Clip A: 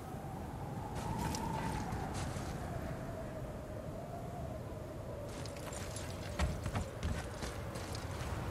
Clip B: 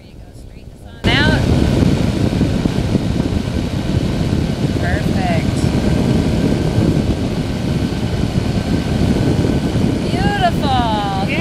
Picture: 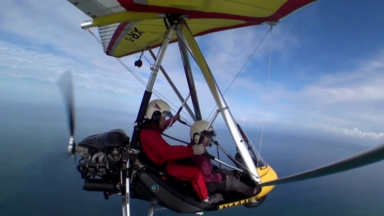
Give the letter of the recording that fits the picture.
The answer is B